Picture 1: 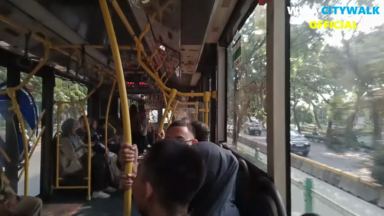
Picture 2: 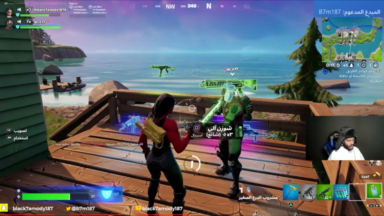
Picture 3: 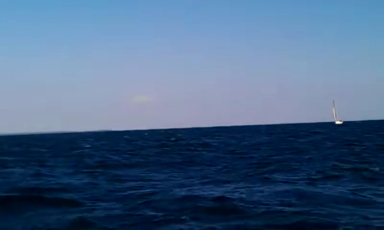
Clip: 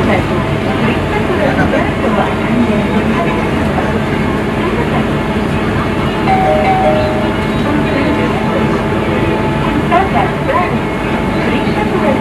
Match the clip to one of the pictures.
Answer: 1